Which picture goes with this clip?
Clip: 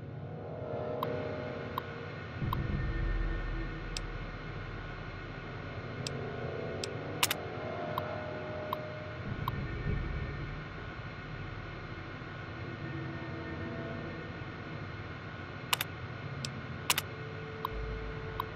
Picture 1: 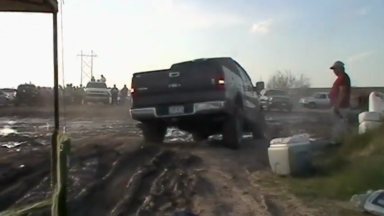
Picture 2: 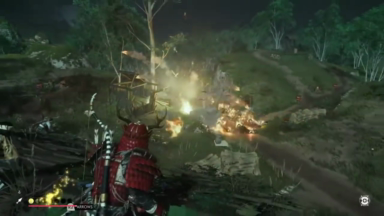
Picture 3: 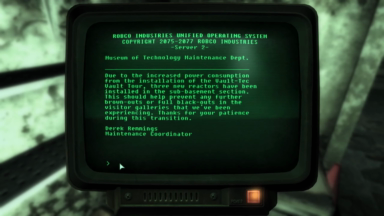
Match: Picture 3